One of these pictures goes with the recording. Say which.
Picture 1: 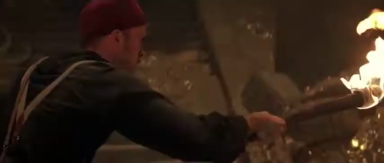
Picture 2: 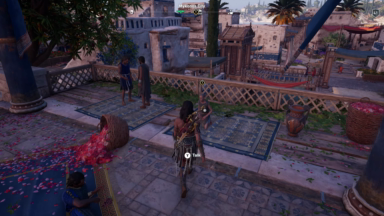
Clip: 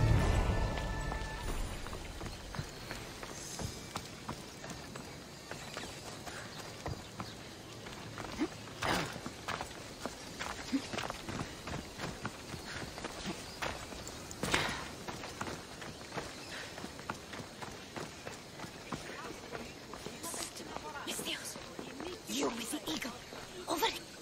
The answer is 2